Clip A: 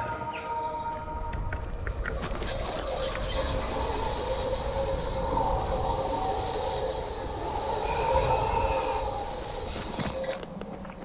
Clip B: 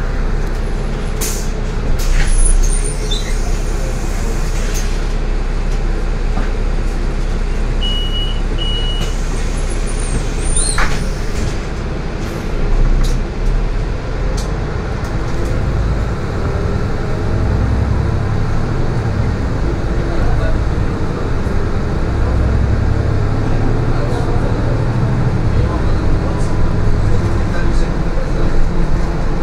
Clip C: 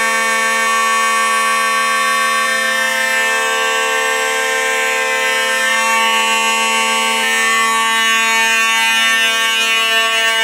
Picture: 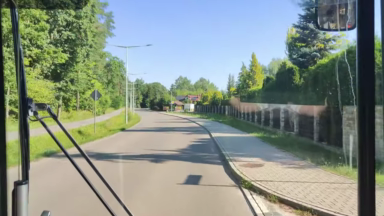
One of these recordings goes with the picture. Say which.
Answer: B